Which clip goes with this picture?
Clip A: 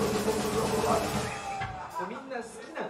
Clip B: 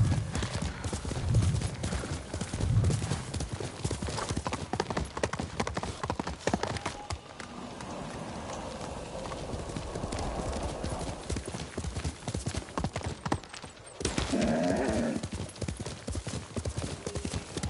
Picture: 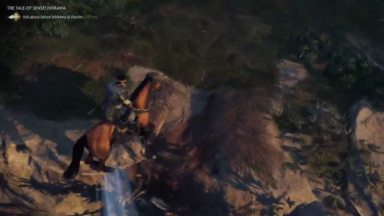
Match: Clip B